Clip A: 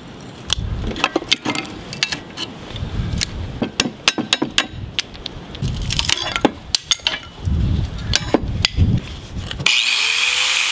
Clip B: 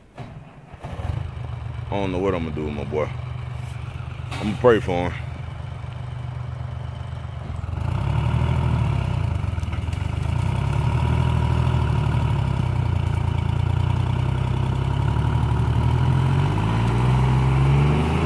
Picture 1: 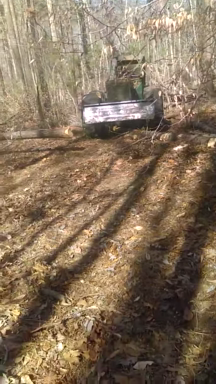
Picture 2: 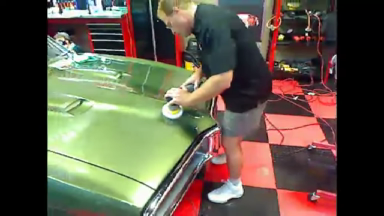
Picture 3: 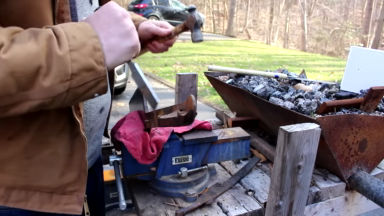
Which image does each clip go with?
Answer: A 3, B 1